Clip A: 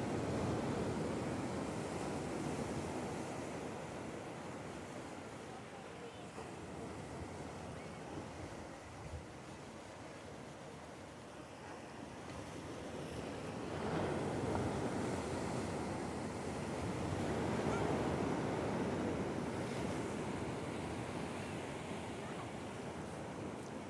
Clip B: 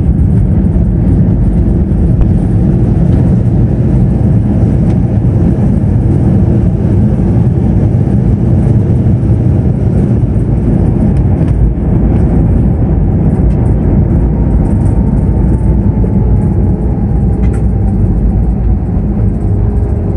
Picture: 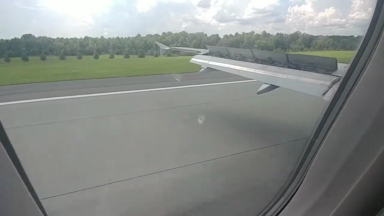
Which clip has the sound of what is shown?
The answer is B